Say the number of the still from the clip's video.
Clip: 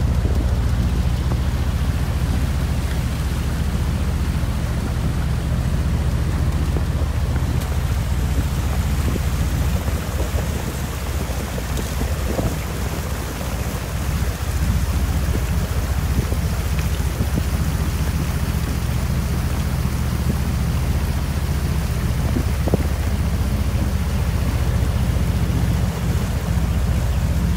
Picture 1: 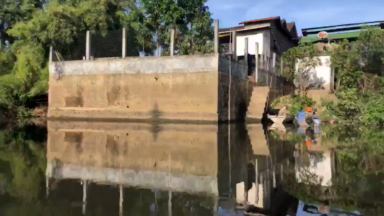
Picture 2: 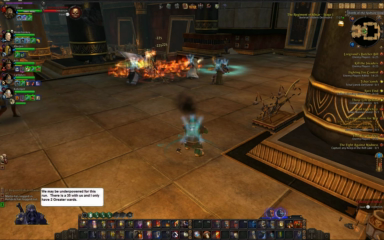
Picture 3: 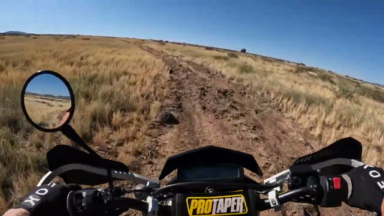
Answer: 1